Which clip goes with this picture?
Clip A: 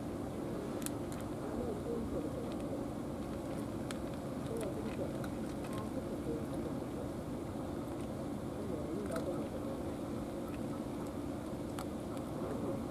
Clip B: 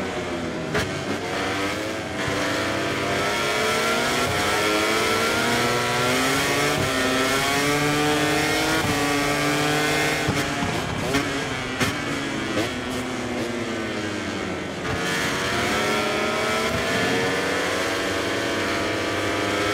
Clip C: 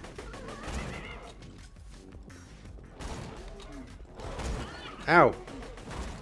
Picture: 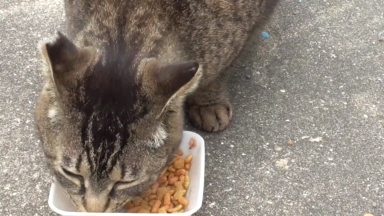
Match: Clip A